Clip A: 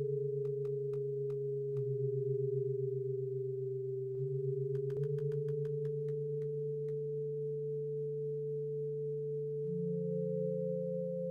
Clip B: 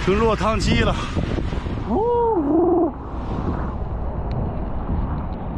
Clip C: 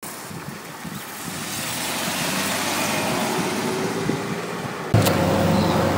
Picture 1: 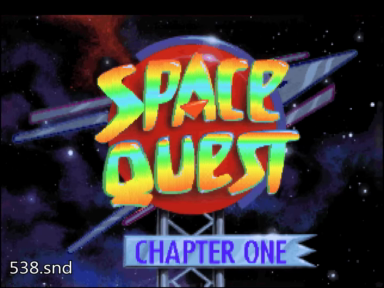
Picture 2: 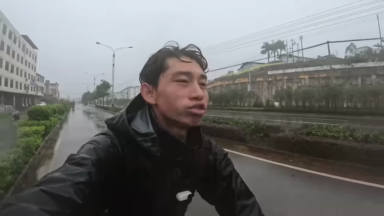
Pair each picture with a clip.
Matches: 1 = A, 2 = B